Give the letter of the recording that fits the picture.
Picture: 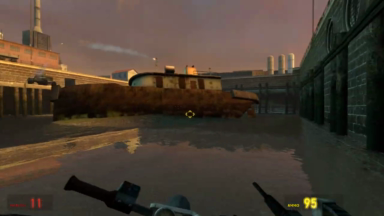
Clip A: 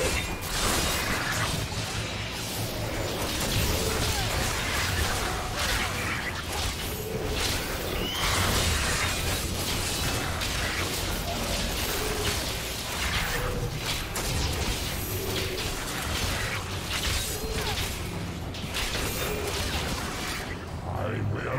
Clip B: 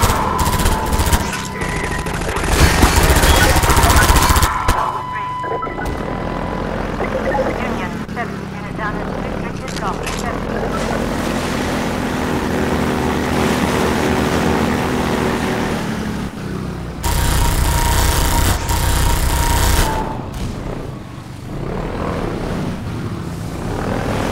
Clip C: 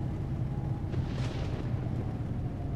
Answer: B